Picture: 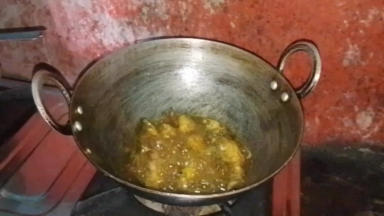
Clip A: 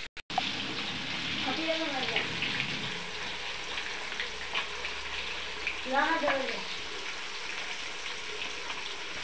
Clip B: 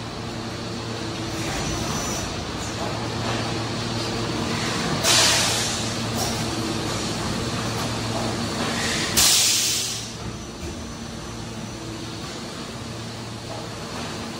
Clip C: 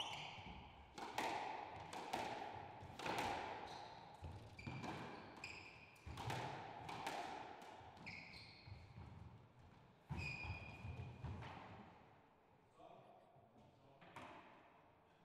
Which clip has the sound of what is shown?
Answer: A